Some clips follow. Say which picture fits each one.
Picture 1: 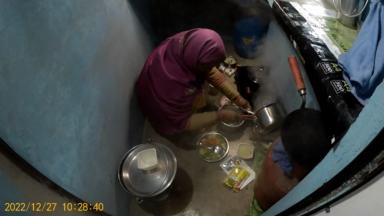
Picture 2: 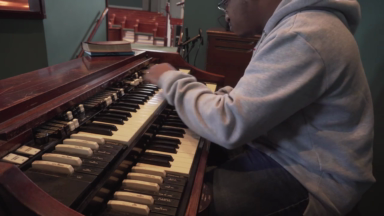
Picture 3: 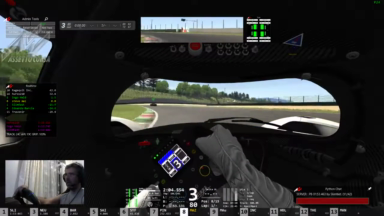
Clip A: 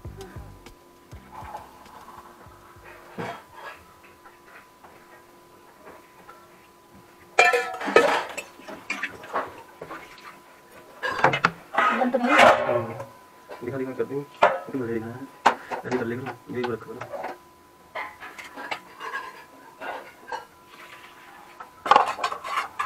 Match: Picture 1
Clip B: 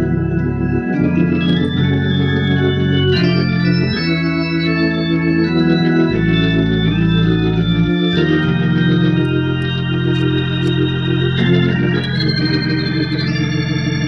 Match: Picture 2